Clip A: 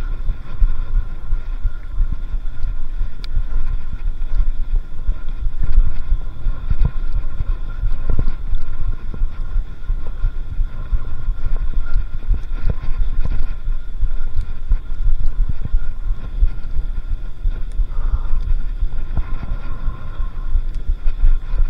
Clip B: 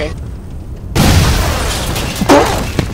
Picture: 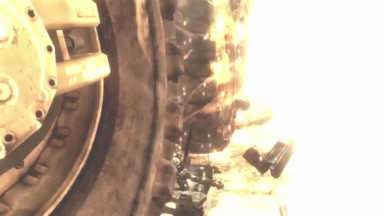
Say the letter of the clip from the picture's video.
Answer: B